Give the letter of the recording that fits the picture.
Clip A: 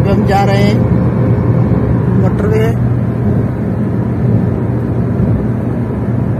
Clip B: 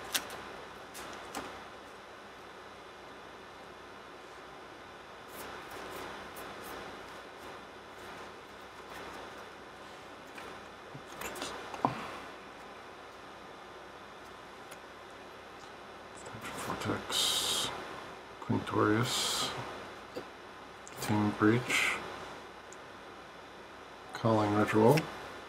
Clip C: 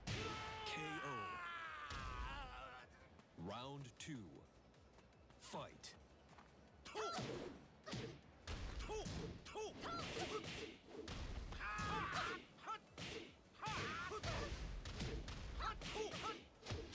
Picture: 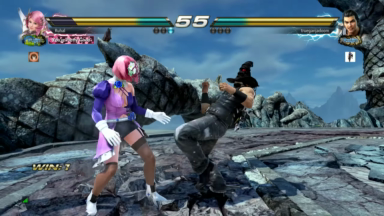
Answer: C